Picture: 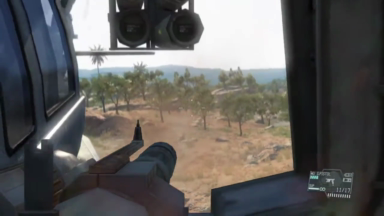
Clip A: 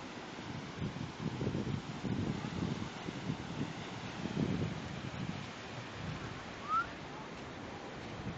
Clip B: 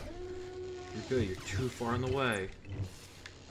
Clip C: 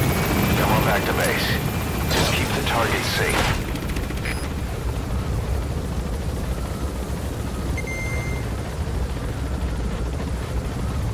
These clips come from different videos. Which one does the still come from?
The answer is C